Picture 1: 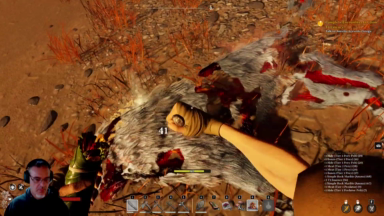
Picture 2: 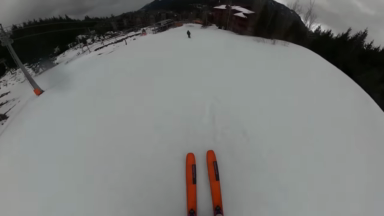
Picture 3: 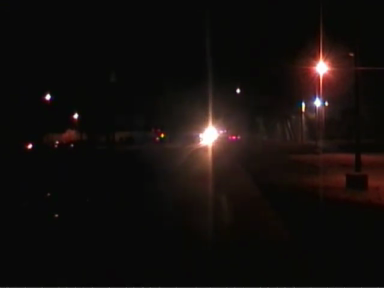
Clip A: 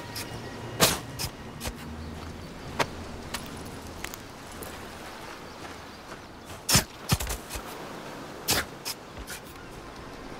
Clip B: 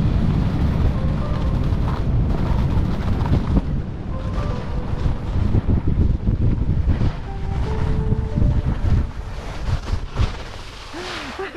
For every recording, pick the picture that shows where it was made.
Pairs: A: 1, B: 2